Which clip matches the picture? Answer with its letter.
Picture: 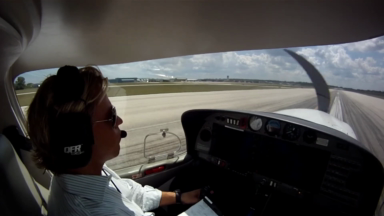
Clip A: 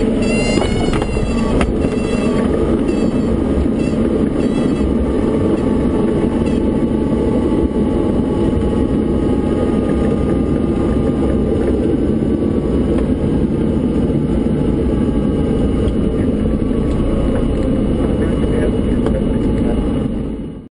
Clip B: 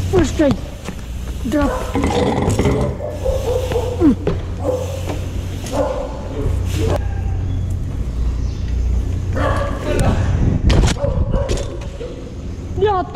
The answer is A